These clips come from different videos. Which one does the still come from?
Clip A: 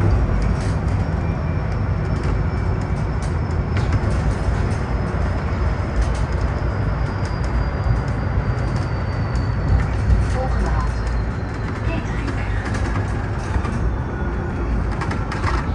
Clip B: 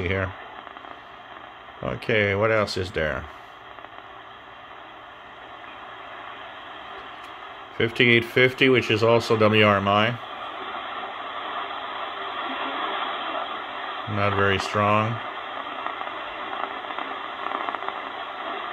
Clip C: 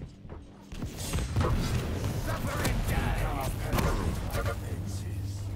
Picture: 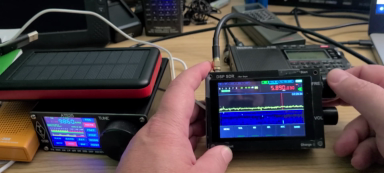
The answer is B